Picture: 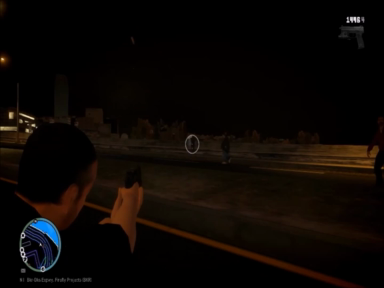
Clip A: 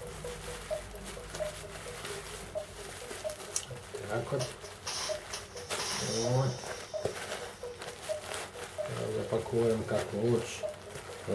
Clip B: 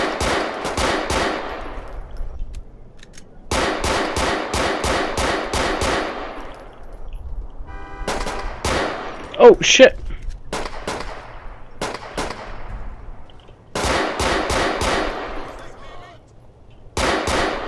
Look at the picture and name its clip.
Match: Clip B